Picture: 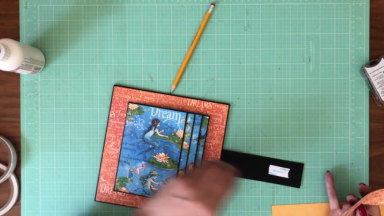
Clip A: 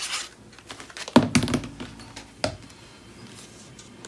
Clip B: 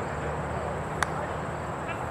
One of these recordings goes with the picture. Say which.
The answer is A